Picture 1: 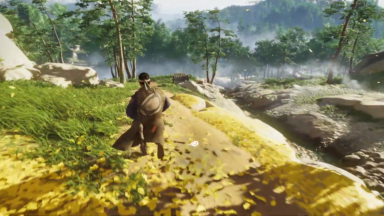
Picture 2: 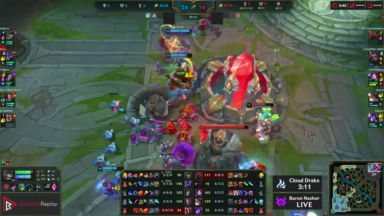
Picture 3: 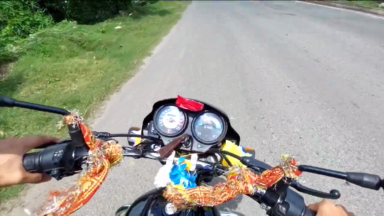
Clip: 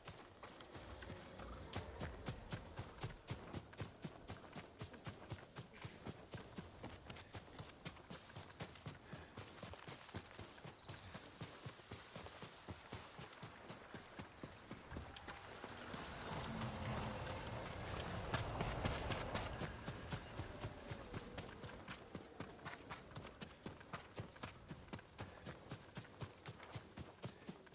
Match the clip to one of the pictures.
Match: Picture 1